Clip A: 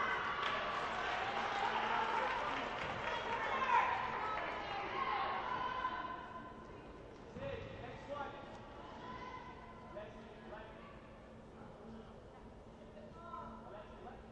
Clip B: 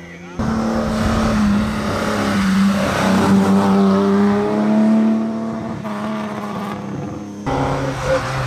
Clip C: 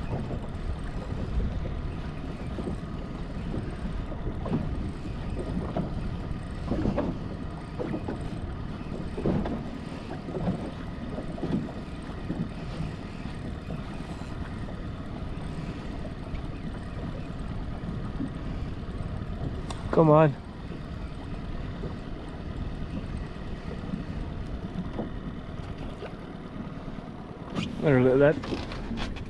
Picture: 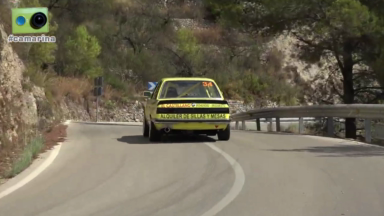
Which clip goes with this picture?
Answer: B